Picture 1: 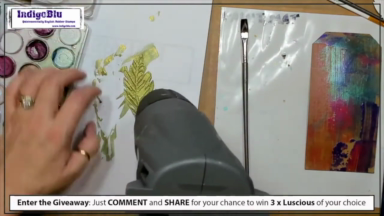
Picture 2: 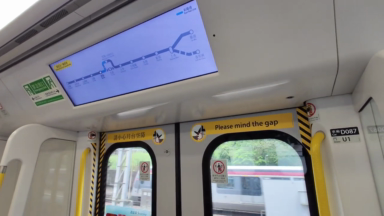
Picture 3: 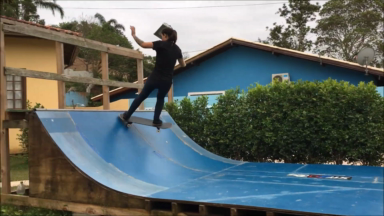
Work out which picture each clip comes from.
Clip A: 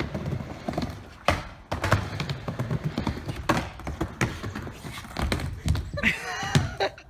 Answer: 3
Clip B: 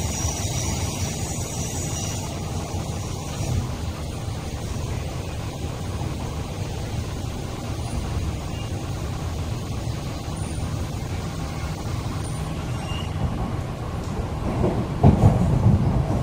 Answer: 2